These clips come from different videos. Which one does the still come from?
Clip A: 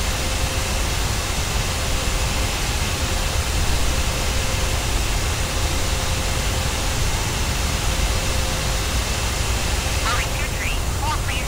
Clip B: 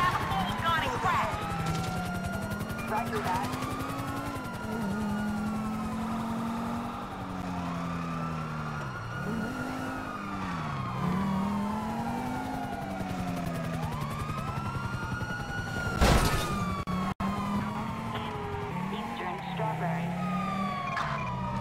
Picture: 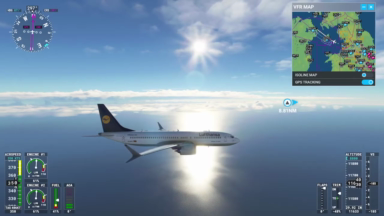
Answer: A